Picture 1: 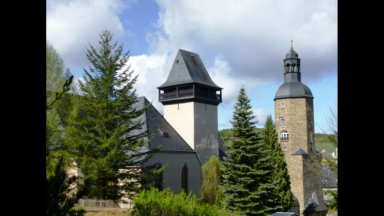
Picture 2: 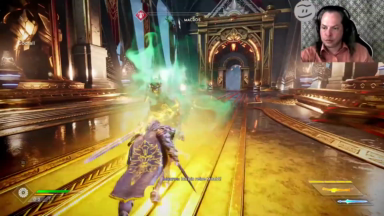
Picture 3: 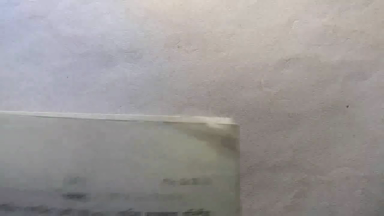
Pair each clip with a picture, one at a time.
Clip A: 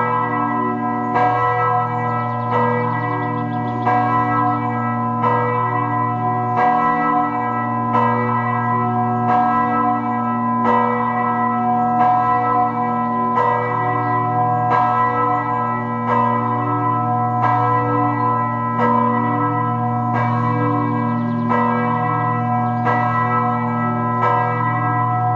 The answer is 1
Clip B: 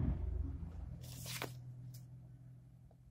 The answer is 3